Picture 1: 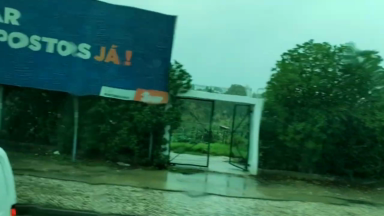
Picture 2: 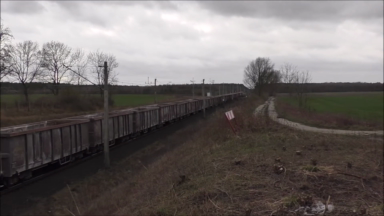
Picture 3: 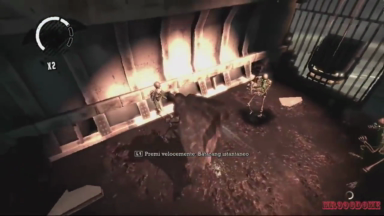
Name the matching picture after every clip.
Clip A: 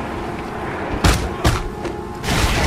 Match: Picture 3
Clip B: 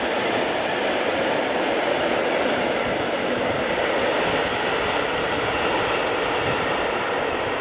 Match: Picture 2